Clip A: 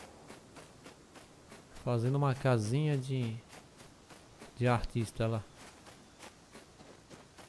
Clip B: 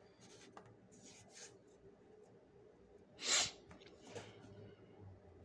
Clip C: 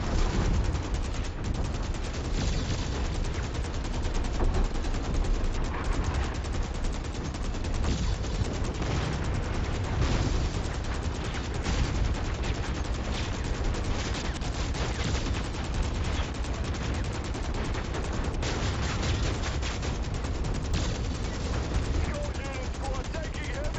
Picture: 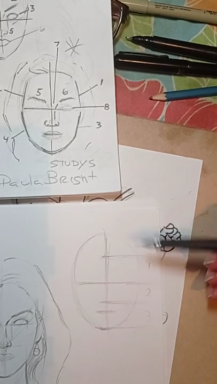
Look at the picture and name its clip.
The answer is B